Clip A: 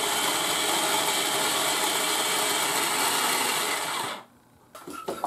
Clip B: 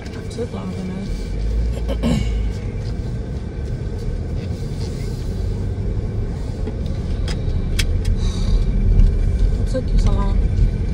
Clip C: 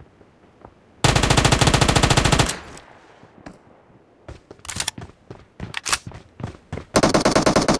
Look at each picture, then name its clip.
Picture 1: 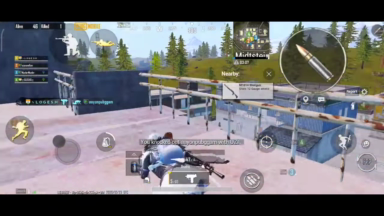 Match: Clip C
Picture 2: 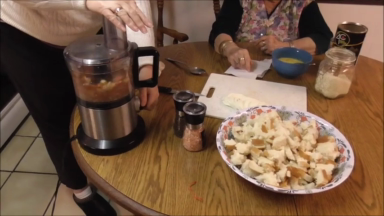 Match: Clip A